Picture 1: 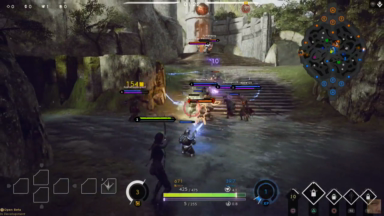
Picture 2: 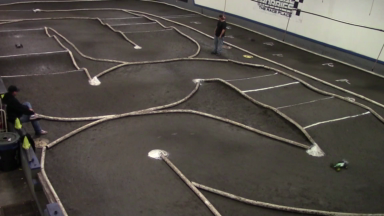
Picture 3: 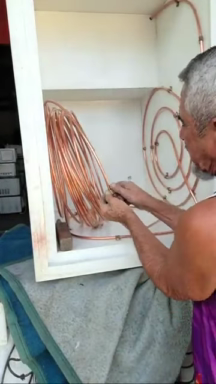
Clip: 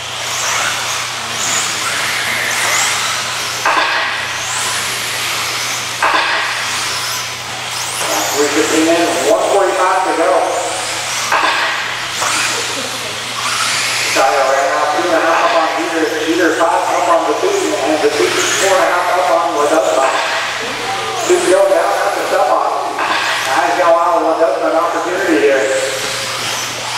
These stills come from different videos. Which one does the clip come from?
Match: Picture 2